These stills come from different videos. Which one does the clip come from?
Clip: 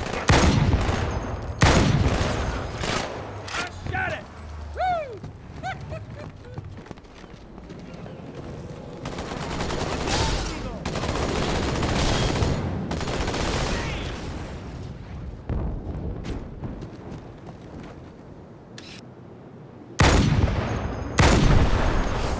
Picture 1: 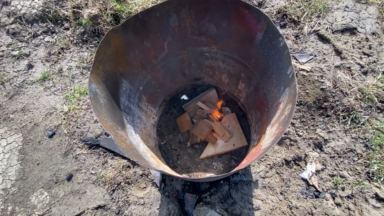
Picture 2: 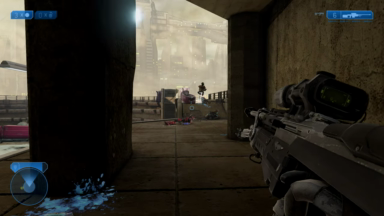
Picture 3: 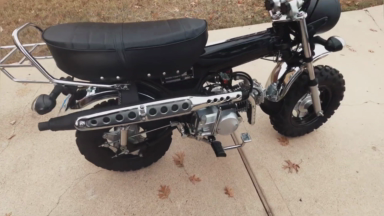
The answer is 2